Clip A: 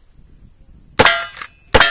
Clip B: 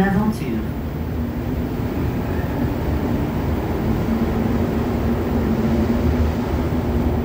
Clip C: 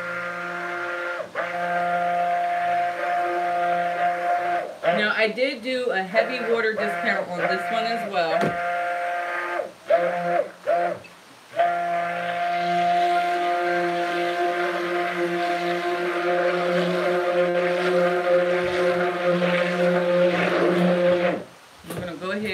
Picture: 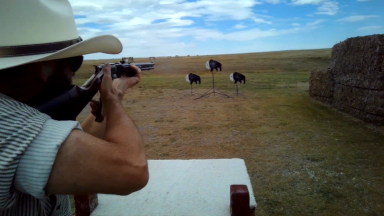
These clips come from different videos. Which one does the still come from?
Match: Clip A